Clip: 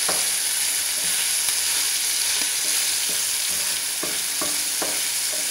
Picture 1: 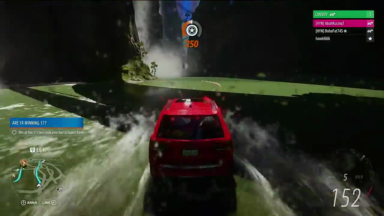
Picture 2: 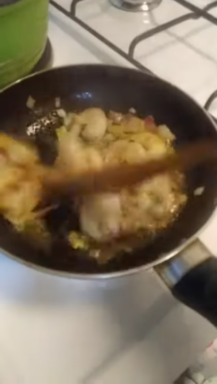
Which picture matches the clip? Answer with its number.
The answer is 2